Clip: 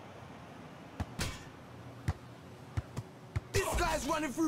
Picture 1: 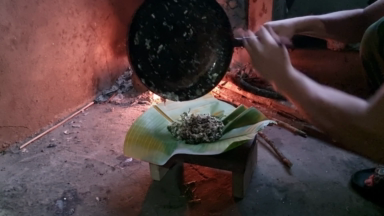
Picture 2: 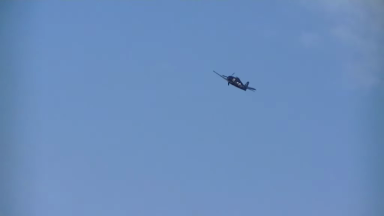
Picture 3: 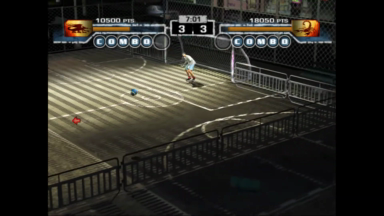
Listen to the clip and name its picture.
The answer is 3